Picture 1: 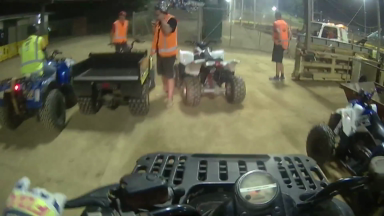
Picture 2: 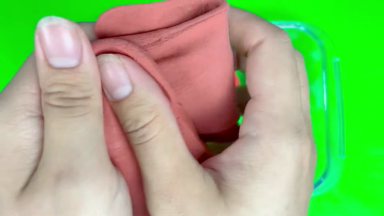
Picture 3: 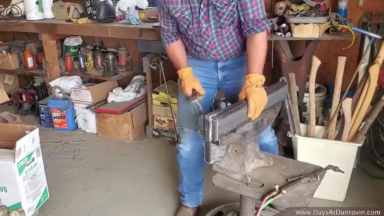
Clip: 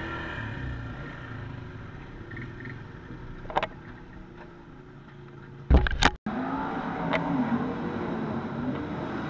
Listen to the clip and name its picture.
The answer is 1